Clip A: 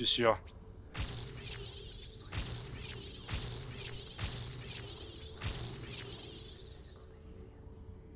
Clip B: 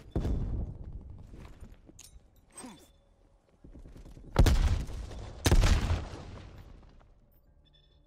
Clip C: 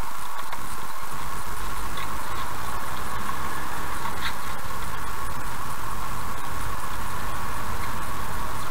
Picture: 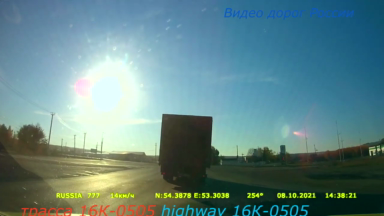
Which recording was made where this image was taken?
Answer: C